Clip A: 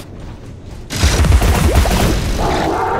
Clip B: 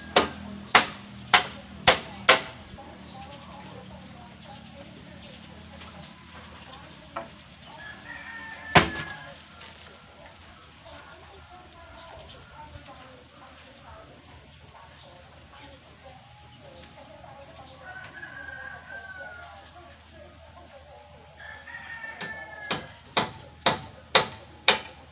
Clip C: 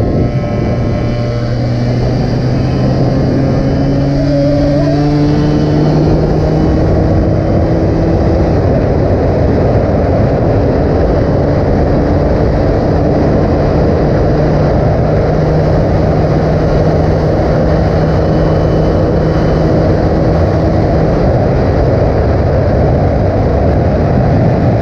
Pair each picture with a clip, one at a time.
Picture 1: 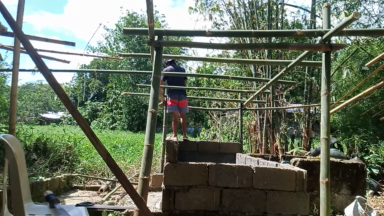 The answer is B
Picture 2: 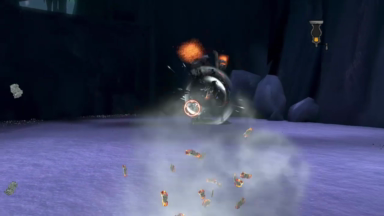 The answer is A